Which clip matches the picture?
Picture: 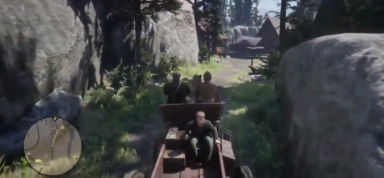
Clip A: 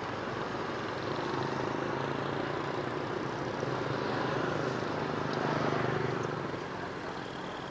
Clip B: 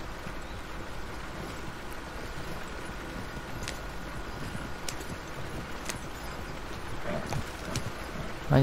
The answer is B